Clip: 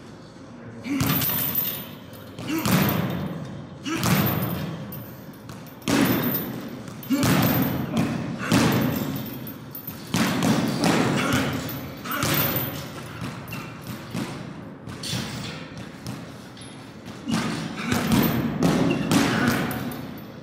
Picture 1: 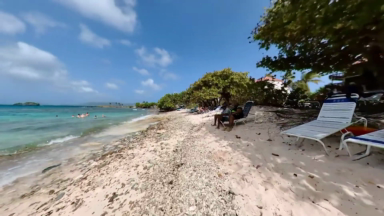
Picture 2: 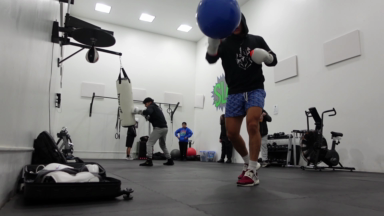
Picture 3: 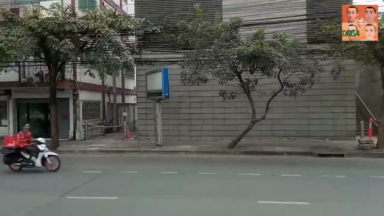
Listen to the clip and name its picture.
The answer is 2